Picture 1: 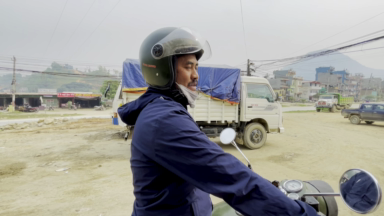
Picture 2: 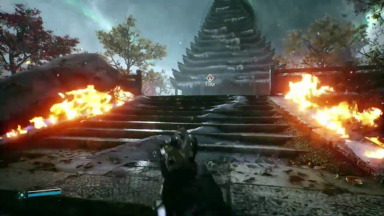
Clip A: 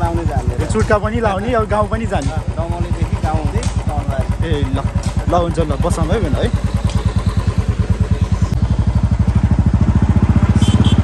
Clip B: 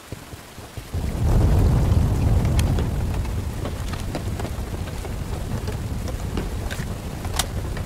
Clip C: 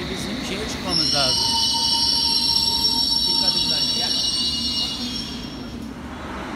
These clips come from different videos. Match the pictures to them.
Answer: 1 A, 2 B